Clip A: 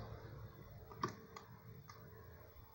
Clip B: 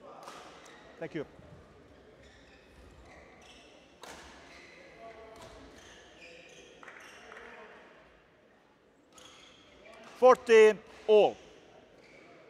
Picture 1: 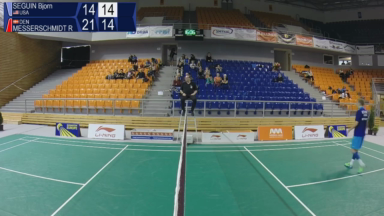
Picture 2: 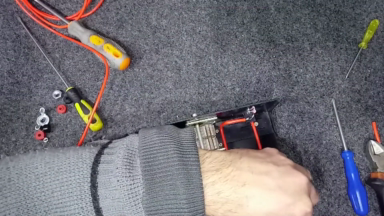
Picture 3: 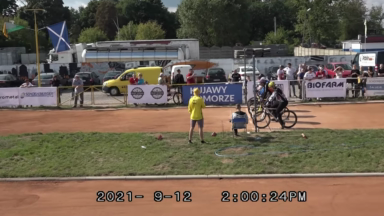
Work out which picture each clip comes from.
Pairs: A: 2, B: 1